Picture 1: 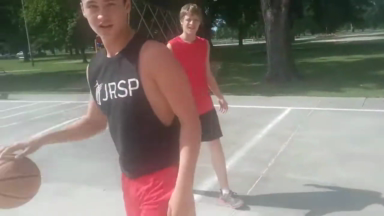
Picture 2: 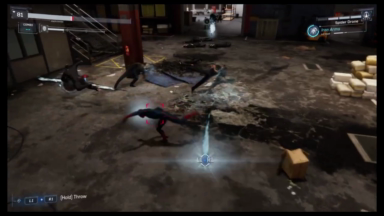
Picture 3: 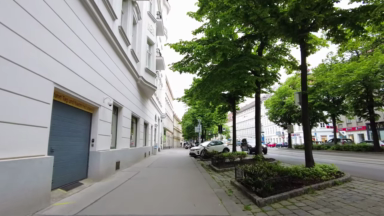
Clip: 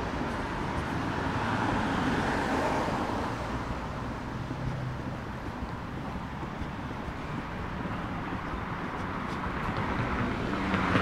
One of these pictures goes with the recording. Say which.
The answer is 3